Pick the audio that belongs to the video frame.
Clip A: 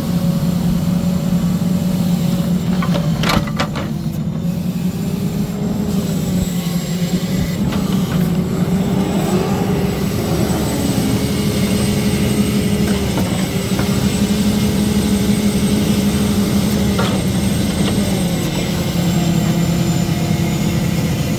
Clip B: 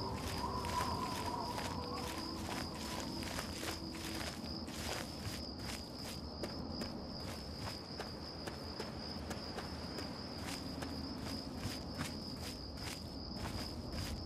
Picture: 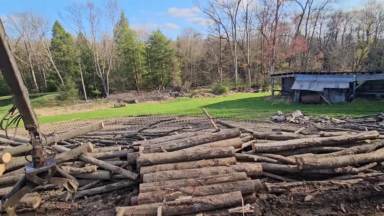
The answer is A